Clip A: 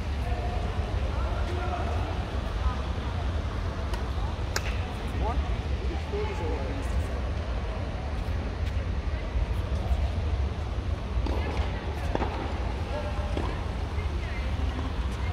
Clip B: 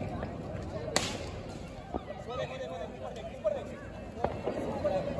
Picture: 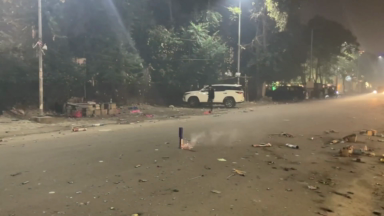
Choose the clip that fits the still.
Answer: B